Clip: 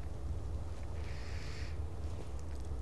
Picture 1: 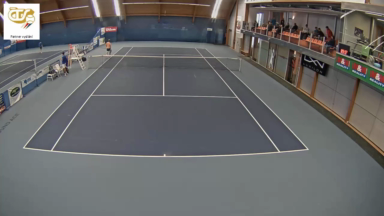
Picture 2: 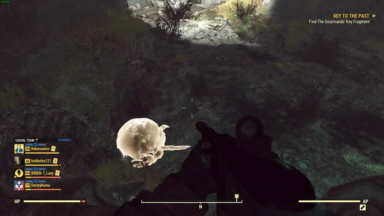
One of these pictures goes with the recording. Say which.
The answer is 2